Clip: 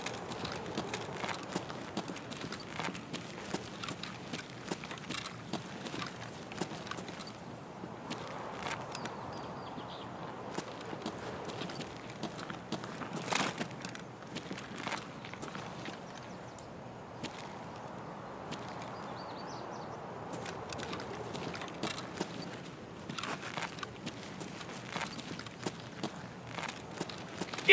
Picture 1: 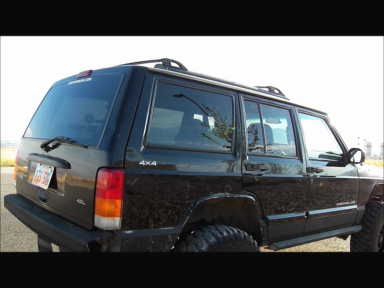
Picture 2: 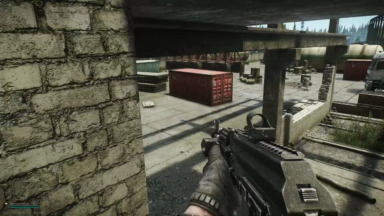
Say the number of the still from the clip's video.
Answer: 2